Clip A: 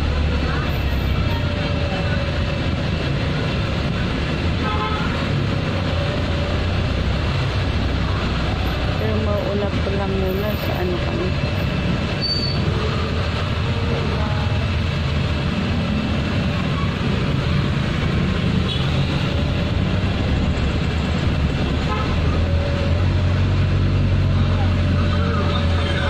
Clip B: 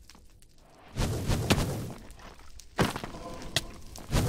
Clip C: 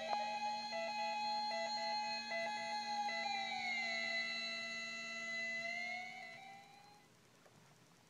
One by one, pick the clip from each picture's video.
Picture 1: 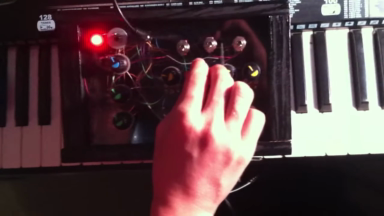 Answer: C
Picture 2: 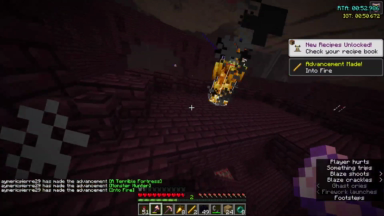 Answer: B